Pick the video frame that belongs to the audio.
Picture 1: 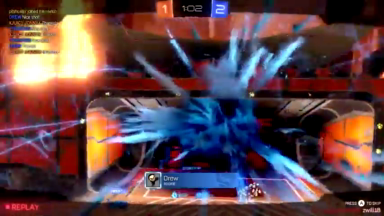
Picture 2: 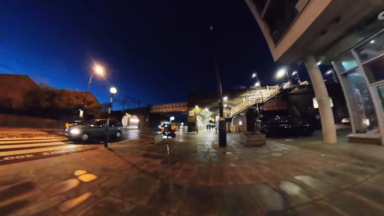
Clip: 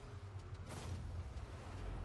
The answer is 1